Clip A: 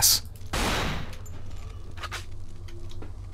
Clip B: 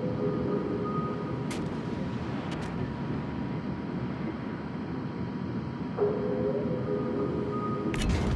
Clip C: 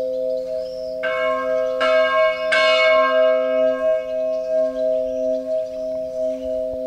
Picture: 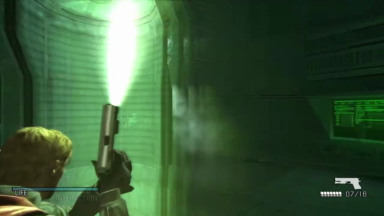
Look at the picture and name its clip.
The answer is A